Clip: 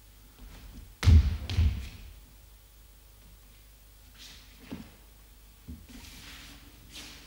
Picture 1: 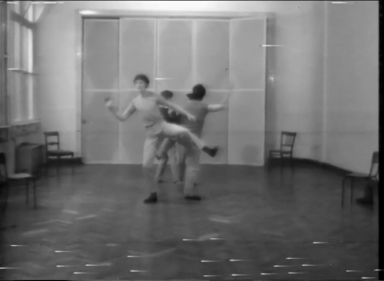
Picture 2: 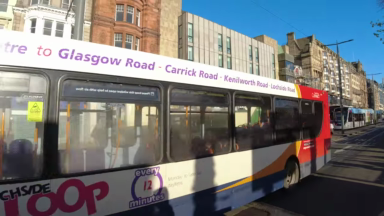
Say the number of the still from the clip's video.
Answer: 1